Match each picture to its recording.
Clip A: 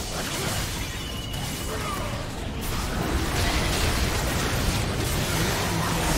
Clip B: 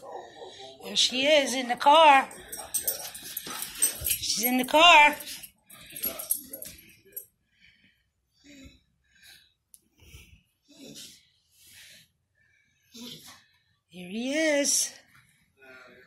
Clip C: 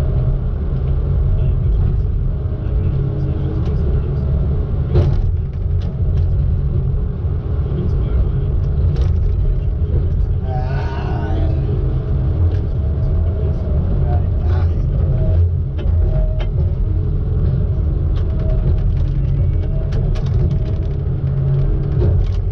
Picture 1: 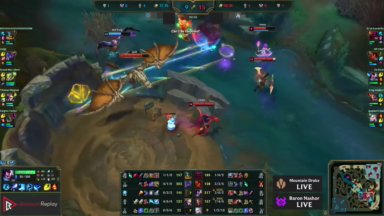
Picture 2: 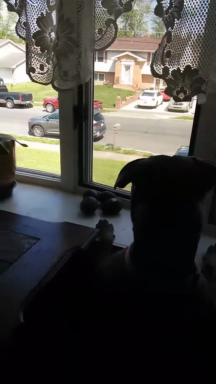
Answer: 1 A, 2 B